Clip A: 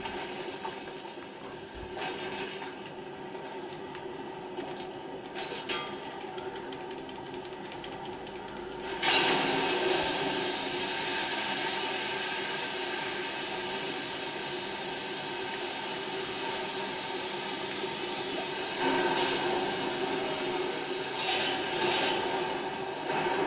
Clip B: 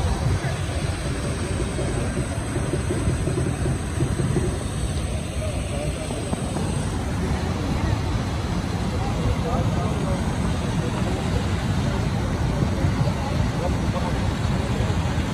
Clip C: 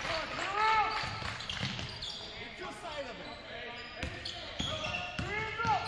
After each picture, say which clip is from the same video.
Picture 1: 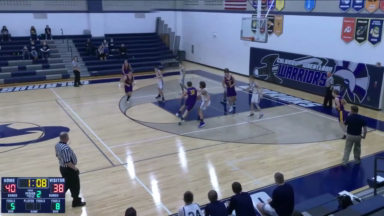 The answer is C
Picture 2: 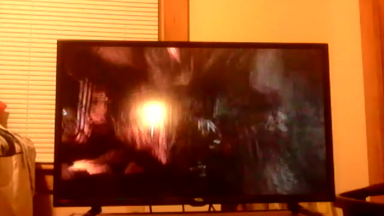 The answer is A